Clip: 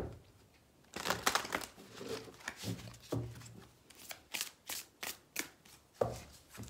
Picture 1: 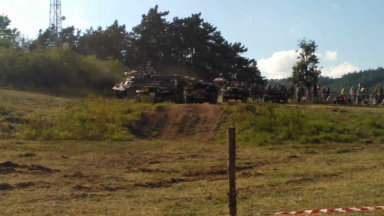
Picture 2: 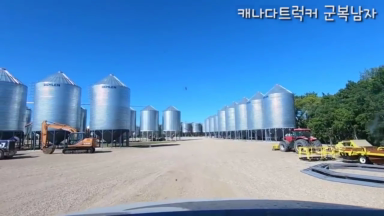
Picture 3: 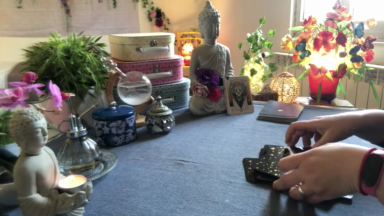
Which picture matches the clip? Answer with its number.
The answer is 3